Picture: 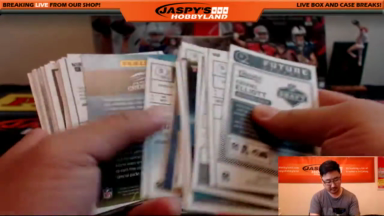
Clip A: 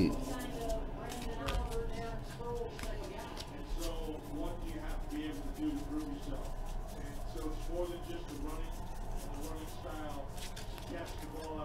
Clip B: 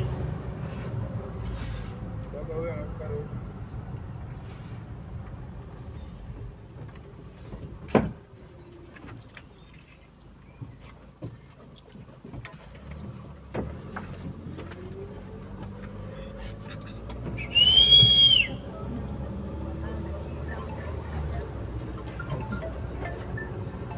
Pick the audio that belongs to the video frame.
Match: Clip A